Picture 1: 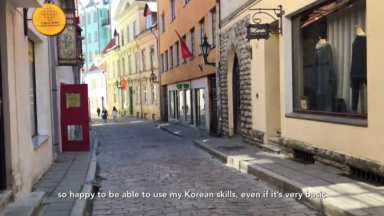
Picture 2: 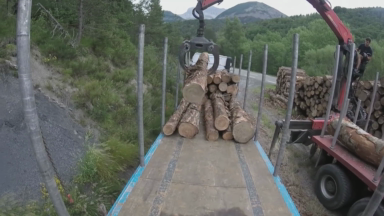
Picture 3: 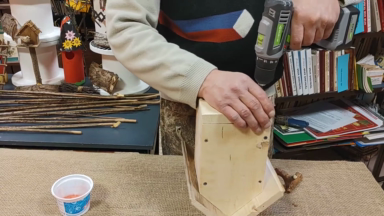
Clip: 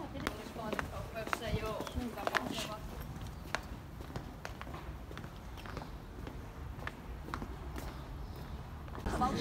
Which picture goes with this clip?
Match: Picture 1